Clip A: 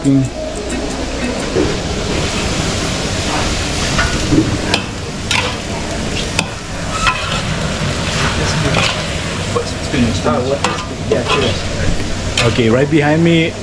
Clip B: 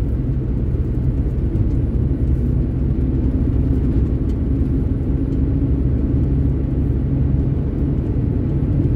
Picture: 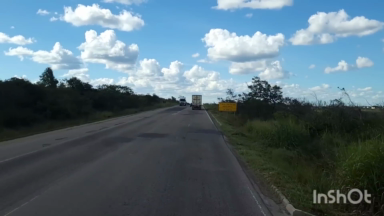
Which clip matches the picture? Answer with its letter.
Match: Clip B